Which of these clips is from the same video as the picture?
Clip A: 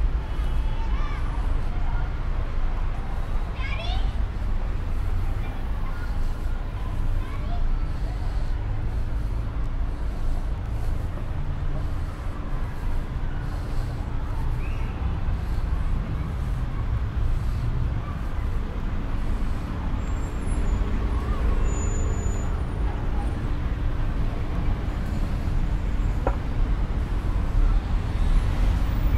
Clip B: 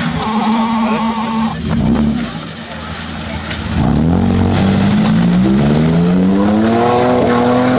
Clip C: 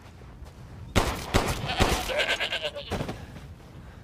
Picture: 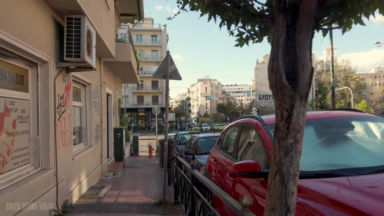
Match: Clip A